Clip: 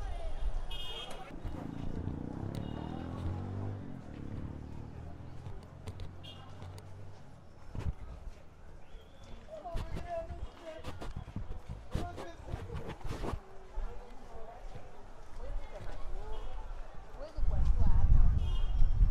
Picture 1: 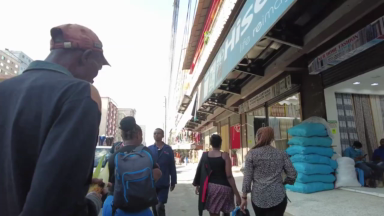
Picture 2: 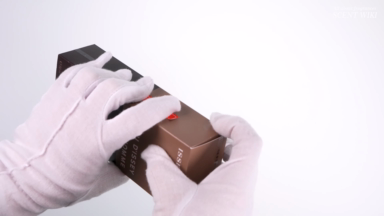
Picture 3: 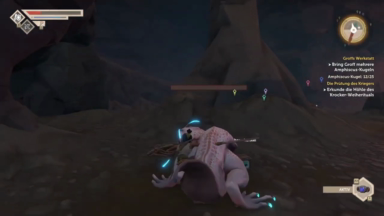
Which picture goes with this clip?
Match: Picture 1